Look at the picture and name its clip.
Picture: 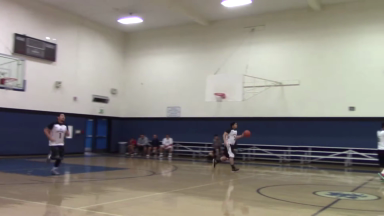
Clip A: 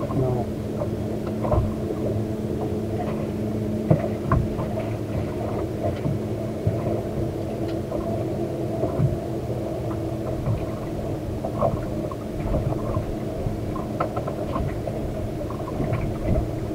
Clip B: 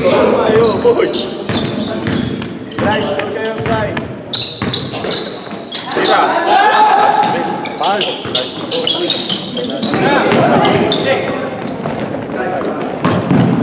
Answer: B